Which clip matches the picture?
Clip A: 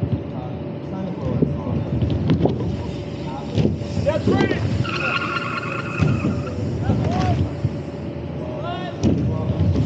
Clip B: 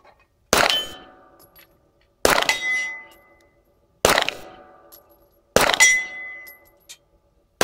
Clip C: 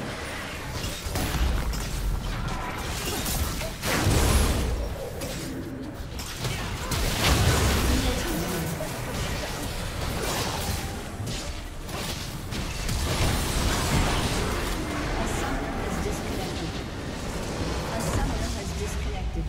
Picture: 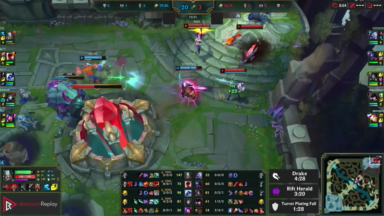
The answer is C